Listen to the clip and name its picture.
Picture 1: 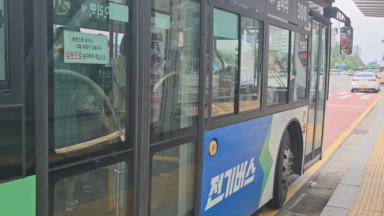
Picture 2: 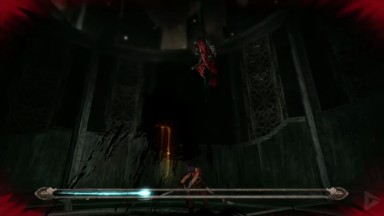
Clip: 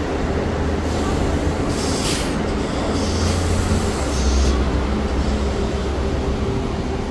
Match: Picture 1